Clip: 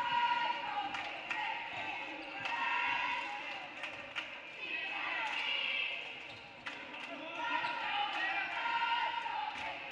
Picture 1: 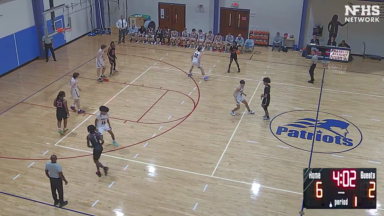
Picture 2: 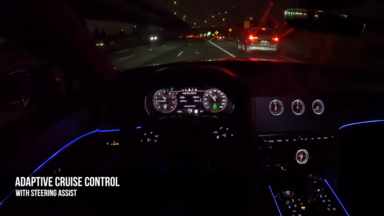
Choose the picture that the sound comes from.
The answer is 1